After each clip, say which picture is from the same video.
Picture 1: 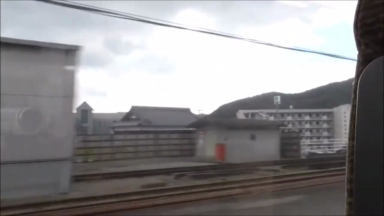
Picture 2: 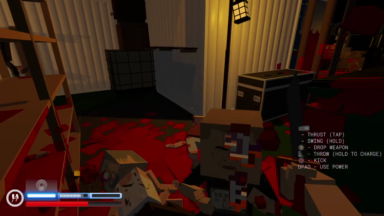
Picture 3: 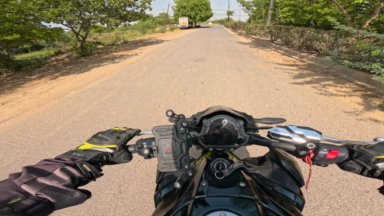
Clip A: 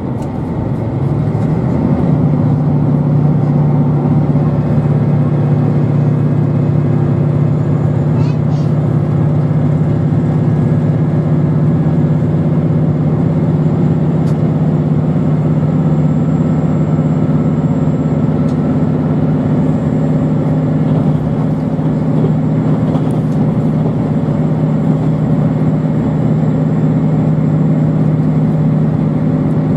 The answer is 1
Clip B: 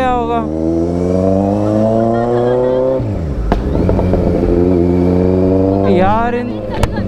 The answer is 3